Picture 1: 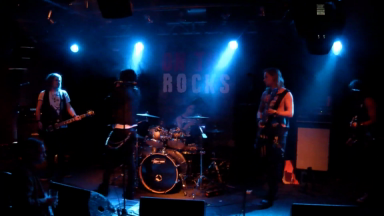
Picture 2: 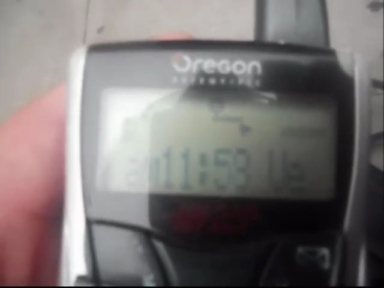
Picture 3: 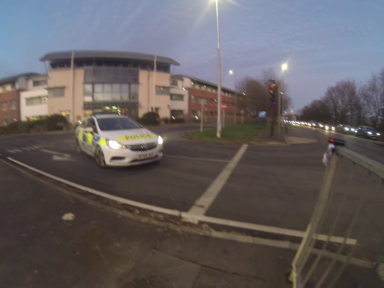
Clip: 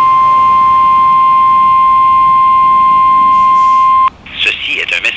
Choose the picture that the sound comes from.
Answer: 2